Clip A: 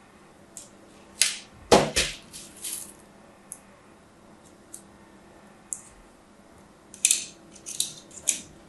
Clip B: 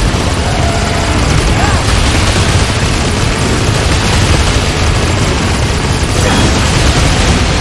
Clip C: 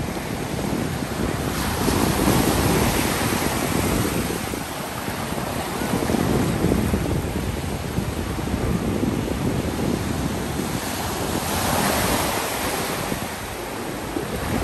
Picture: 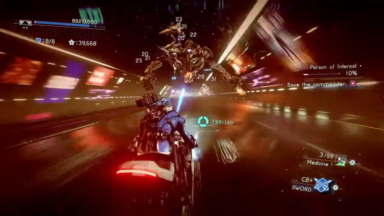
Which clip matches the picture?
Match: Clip B